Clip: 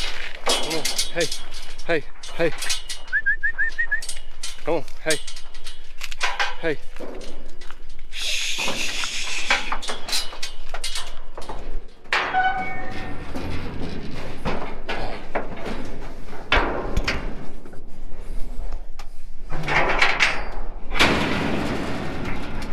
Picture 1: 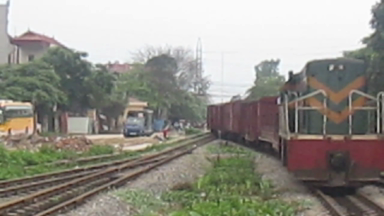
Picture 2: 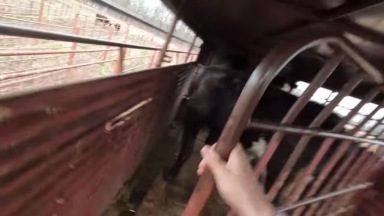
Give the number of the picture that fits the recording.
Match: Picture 2